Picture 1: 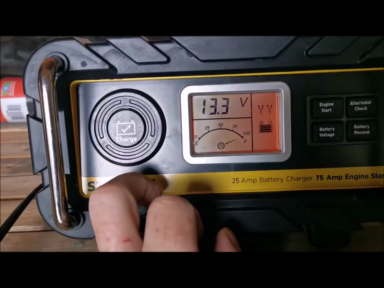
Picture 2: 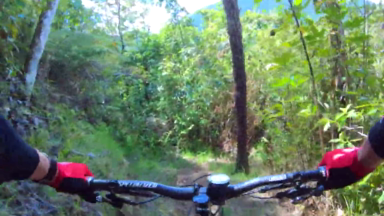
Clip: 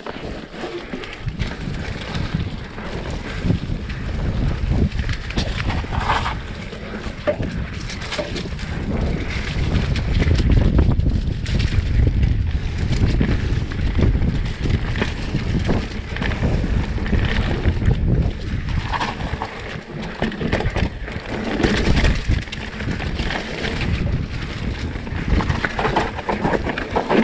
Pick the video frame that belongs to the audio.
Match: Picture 2